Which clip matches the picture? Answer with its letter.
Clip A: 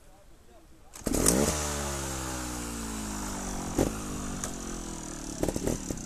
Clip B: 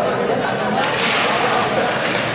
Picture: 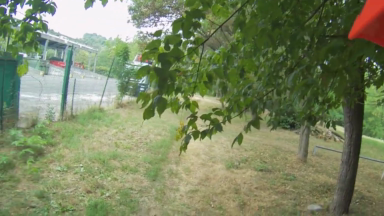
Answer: A